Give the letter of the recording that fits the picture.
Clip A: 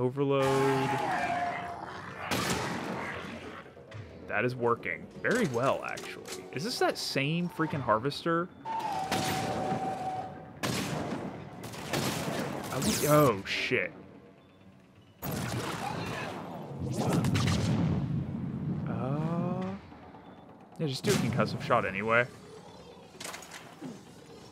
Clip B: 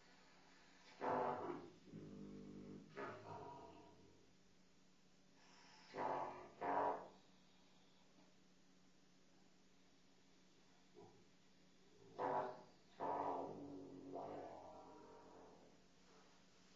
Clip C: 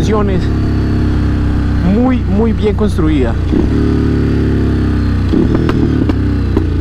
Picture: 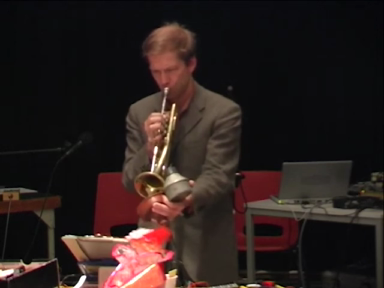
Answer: B